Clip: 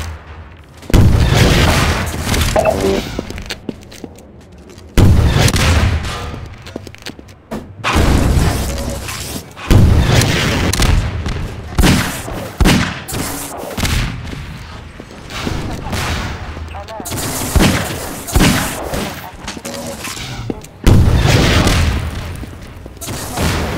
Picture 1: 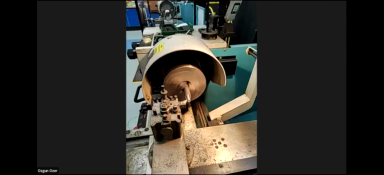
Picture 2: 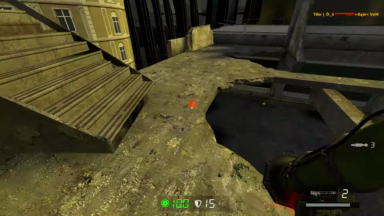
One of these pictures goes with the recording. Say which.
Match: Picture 2